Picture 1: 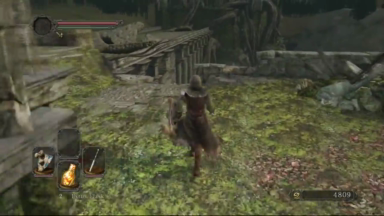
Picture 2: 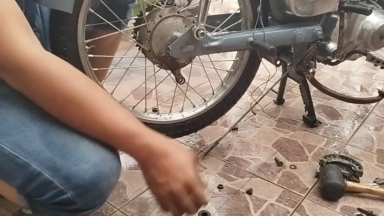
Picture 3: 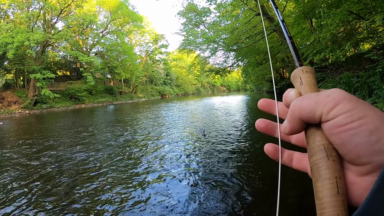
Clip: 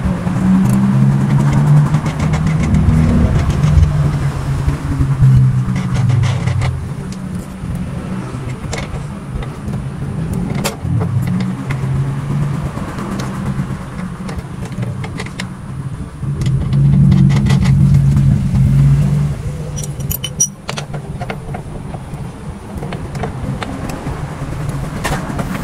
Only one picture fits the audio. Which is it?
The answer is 2